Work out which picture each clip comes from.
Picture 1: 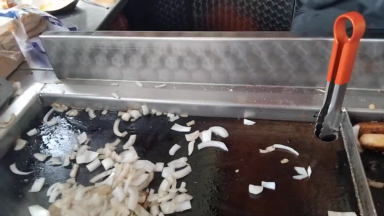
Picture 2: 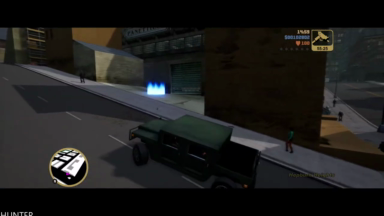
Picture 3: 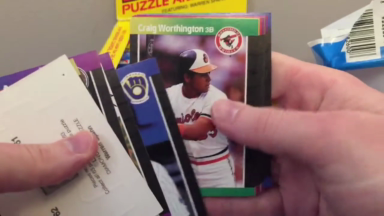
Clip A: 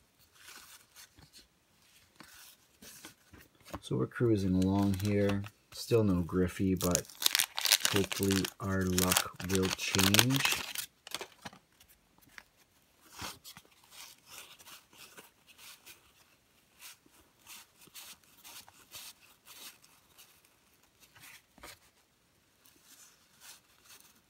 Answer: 3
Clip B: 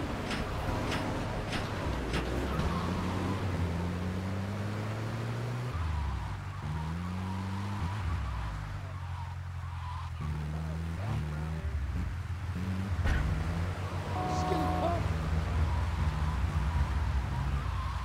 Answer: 2